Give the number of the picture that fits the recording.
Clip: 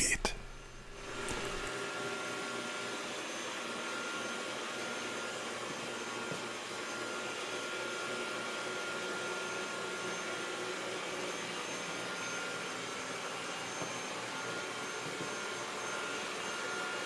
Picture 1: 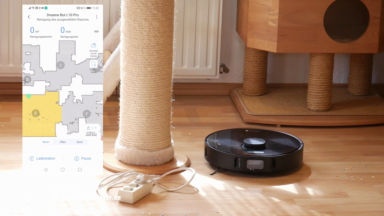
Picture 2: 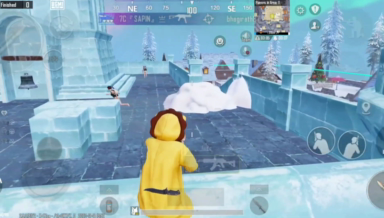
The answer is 1